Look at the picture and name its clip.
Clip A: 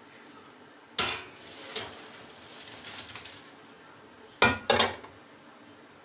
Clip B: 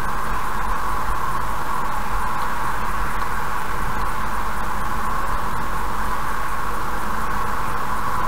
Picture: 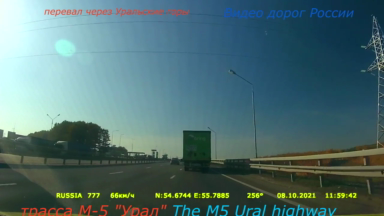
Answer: B